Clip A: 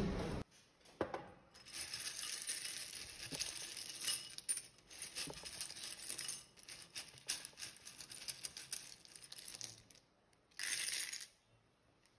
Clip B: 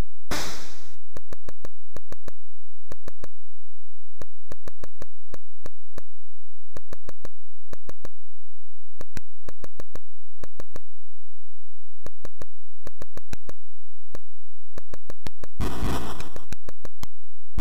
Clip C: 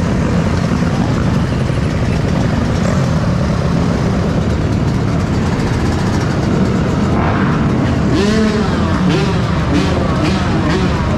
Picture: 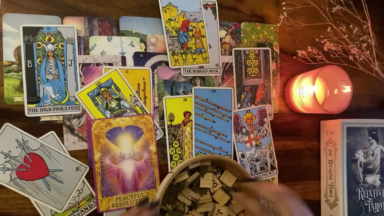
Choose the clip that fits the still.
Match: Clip A